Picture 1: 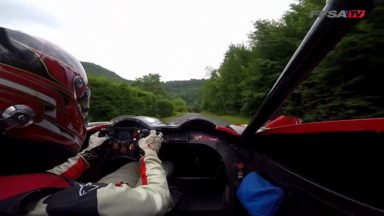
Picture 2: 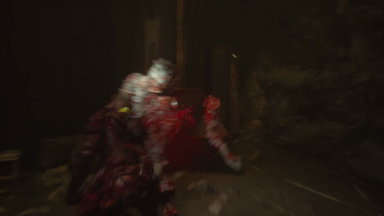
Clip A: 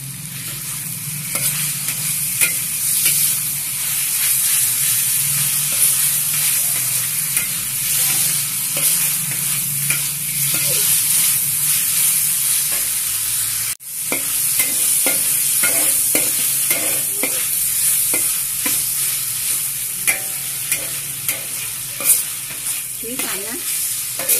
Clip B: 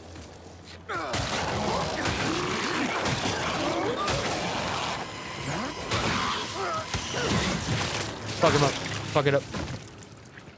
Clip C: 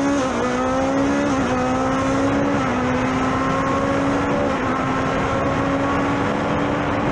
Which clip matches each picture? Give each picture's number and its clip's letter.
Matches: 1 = C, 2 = B